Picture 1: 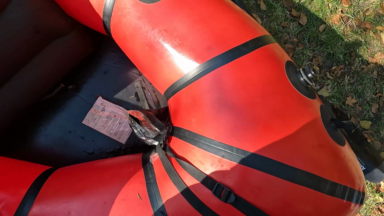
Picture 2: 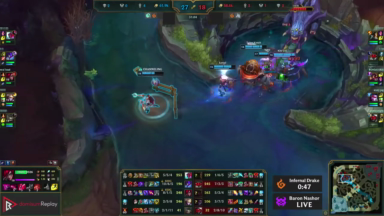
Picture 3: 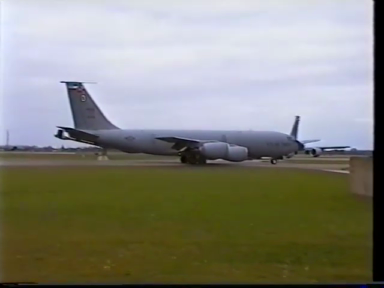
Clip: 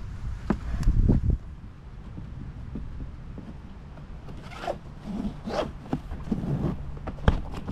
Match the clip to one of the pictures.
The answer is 1